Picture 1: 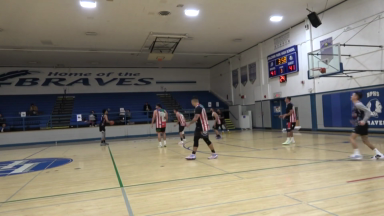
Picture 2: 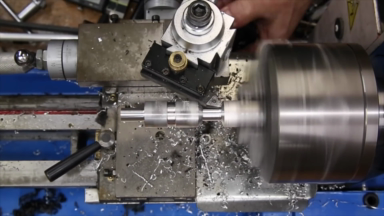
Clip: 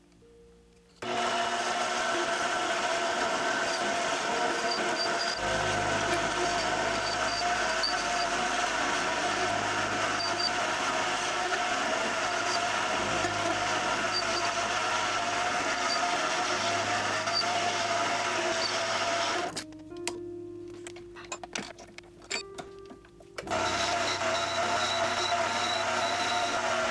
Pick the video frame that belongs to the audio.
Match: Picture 2